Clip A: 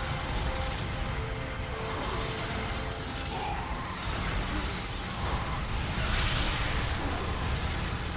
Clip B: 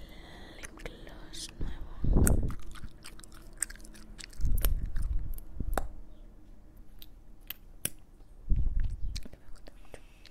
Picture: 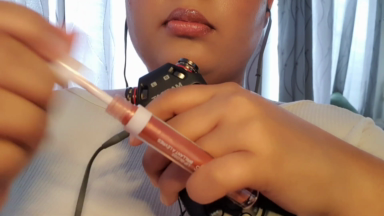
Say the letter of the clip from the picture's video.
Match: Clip B